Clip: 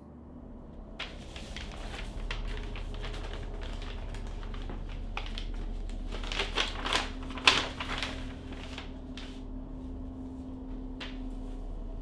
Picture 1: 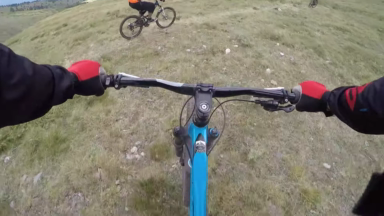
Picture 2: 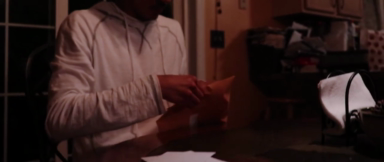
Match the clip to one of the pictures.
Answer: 2